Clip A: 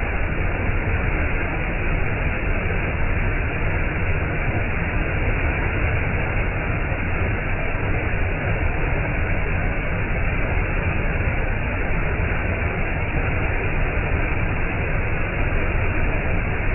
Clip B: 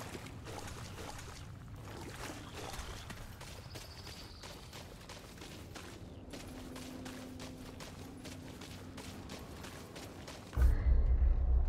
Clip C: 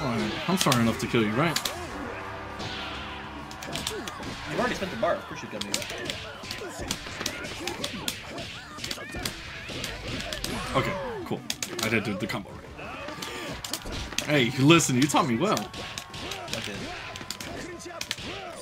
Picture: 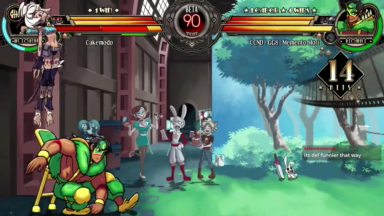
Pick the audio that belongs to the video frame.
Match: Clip C